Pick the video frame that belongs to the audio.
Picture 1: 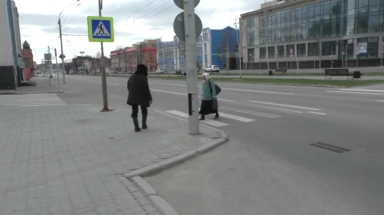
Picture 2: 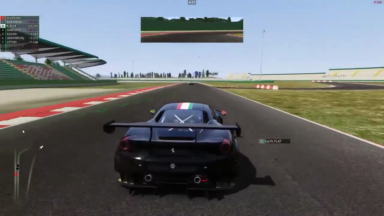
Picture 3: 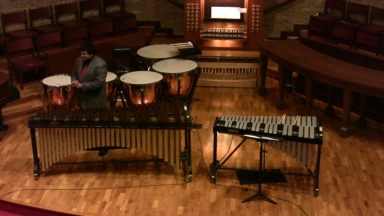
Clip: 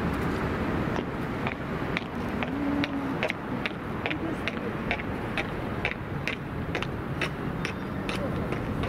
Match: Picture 1